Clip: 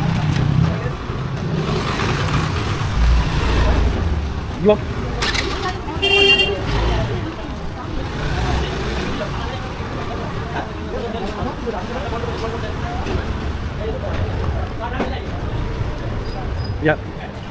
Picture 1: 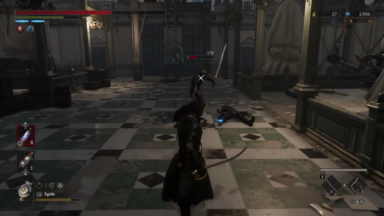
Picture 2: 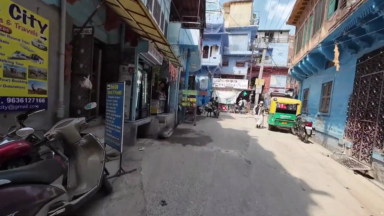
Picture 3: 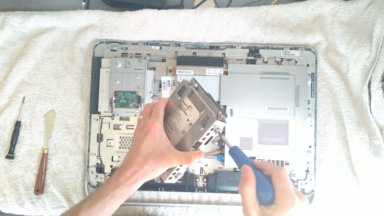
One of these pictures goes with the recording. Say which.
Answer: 2